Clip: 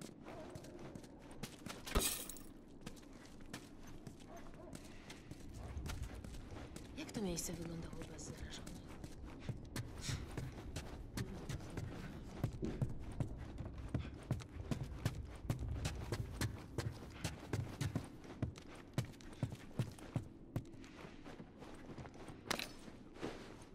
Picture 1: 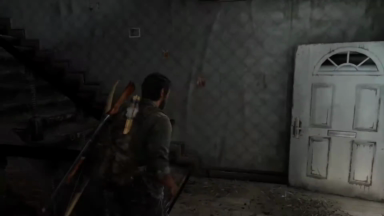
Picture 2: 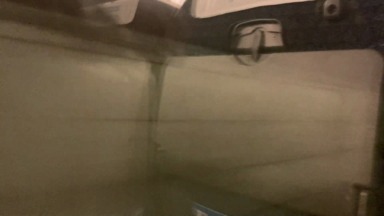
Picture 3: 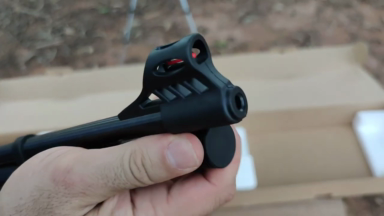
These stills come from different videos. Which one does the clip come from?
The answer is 1